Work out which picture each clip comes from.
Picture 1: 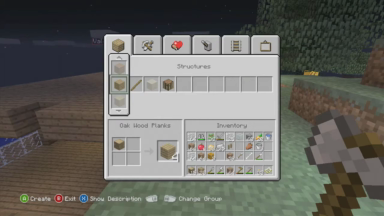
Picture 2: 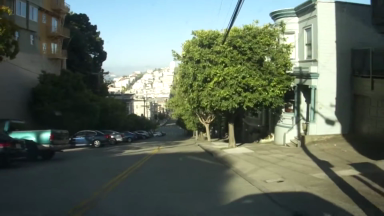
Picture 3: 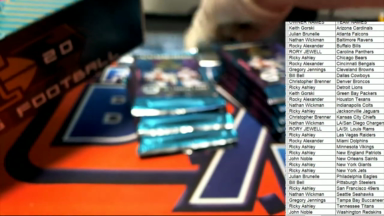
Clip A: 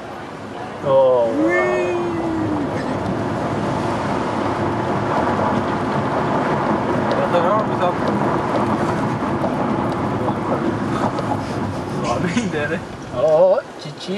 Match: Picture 2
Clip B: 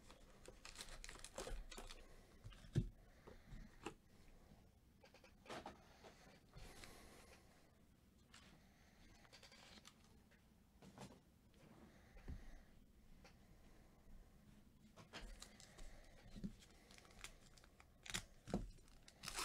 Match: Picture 3